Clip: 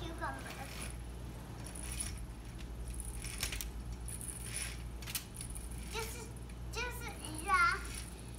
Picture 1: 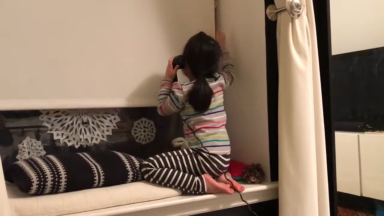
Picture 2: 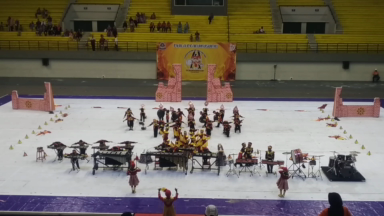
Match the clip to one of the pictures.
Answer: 1